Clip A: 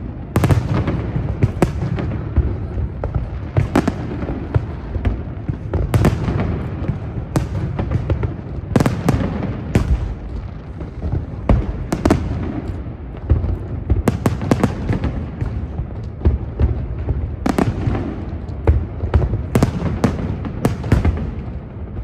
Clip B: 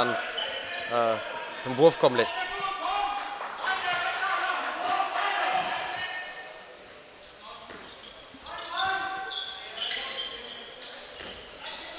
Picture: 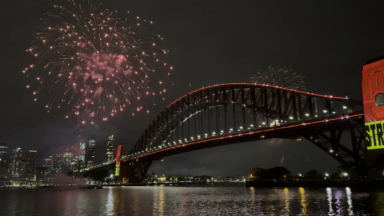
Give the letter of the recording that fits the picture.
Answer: A